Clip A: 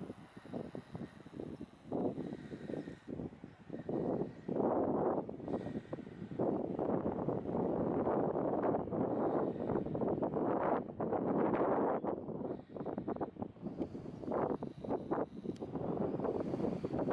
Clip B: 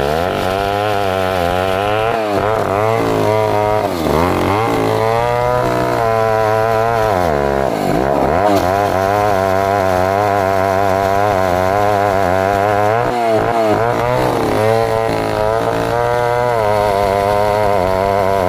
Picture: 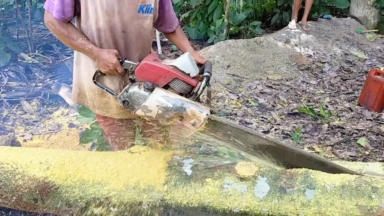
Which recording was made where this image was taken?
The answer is B